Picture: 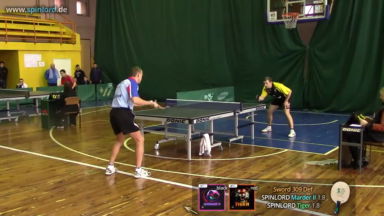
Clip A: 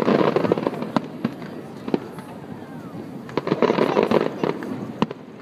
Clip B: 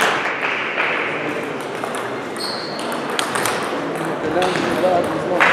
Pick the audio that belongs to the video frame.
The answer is B